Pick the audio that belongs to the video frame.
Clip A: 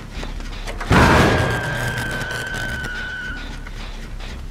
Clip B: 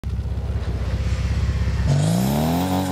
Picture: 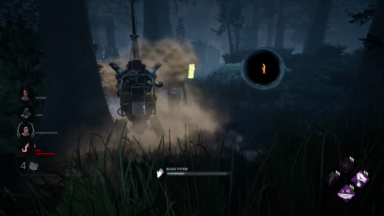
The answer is A